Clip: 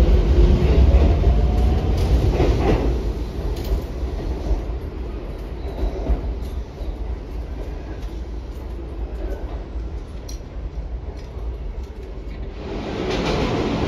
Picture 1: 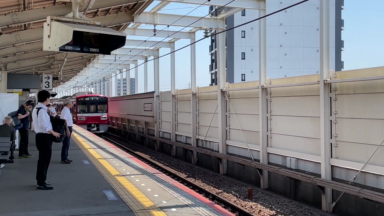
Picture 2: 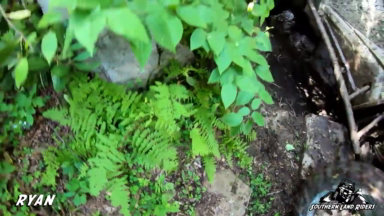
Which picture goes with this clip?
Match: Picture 1